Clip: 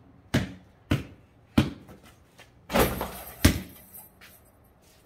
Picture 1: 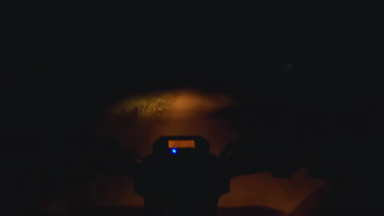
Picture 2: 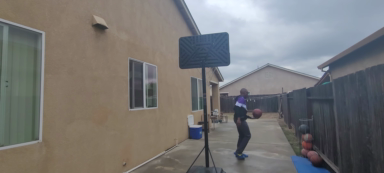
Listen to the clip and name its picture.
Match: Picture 2